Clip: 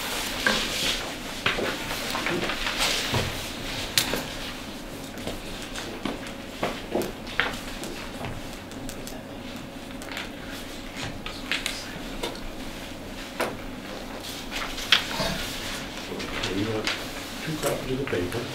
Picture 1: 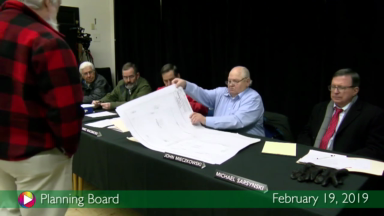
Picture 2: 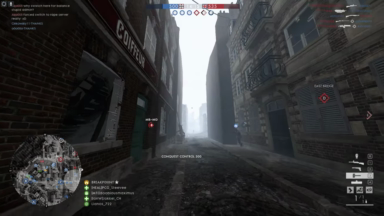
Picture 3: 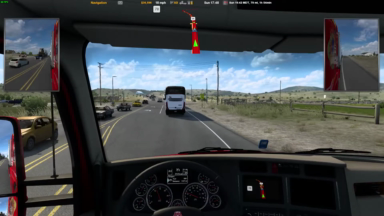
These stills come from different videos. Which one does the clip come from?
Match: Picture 1